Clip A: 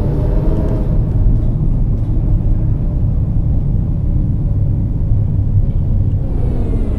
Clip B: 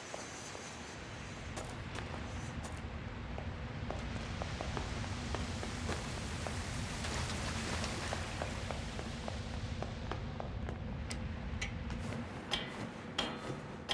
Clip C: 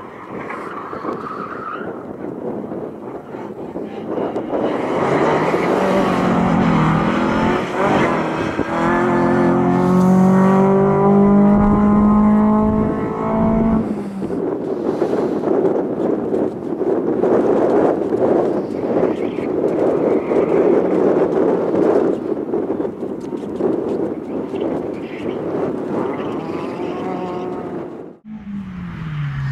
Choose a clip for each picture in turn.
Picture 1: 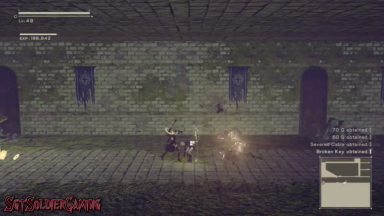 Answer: B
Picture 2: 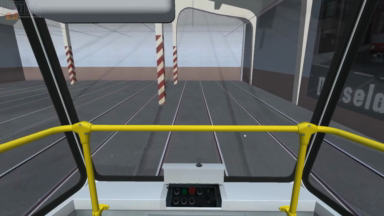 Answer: A